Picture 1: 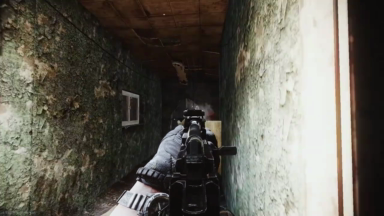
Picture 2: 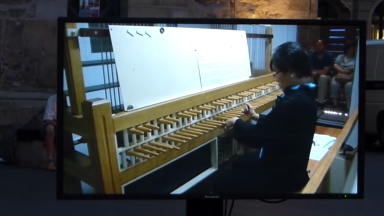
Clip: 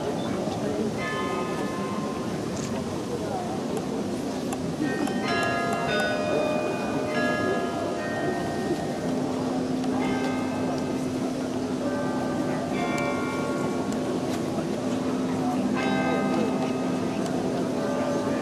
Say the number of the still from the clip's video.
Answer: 2